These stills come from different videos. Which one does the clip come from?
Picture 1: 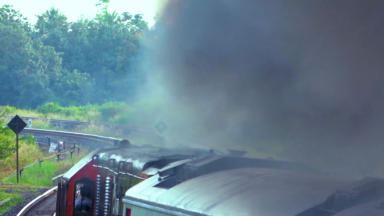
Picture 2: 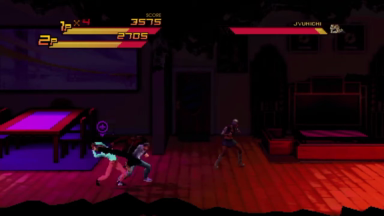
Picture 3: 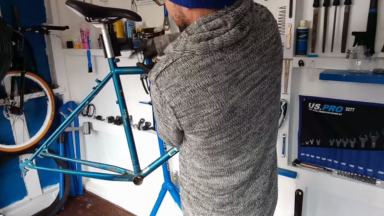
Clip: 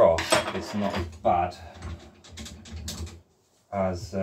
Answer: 3